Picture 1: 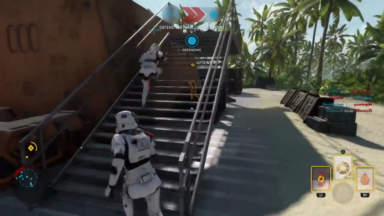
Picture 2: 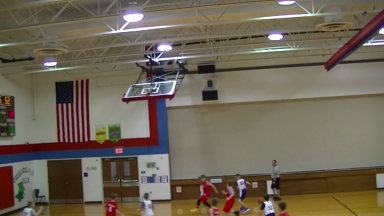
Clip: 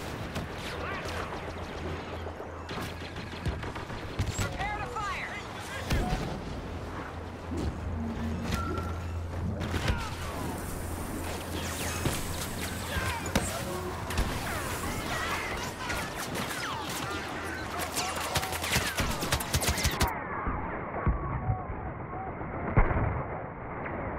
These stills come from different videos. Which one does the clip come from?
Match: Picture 1